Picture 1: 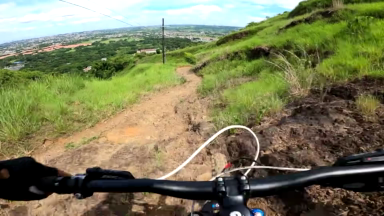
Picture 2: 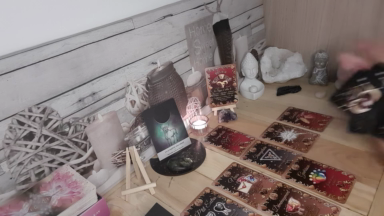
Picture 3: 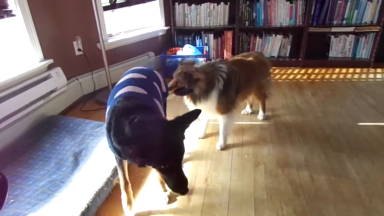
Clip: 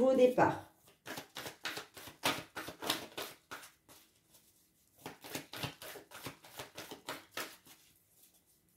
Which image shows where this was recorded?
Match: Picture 2